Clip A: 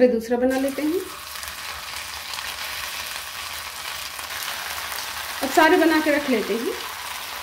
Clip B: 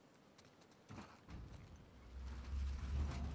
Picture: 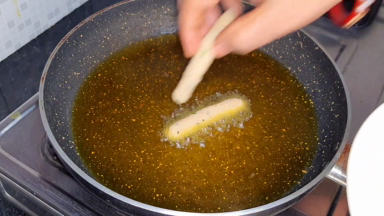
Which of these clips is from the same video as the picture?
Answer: A